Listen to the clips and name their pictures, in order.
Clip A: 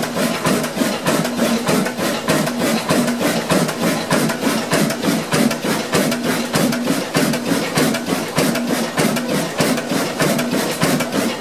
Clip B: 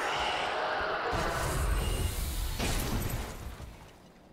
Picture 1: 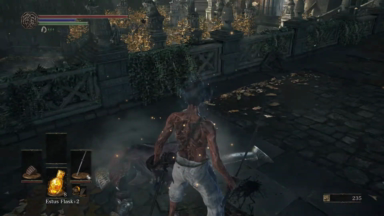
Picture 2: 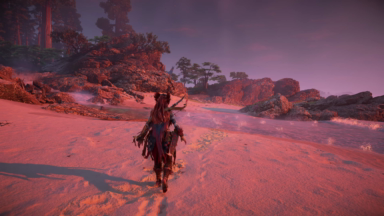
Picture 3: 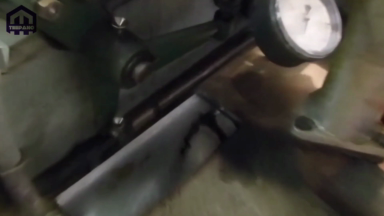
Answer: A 3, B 1